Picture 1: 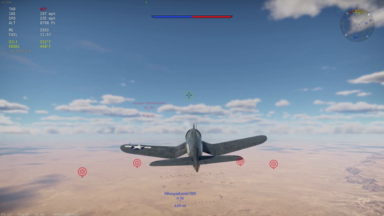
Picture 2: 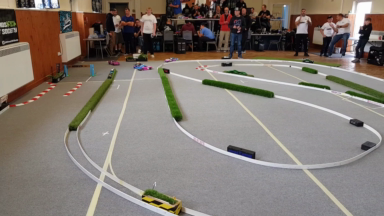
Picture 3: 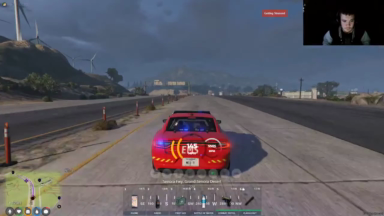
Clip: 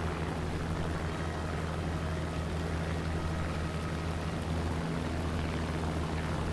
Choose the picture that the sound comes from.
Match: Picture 1